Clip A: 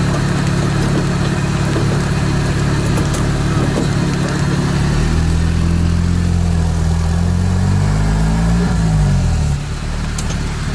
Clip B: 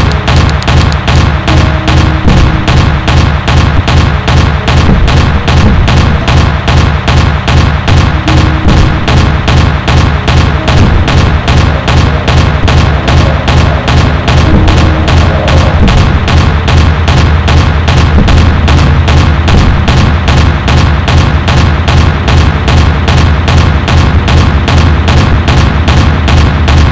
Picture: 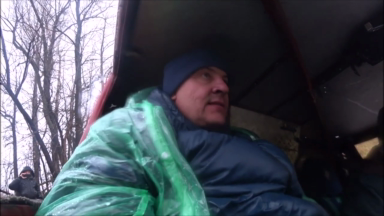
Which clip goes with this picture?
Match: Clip A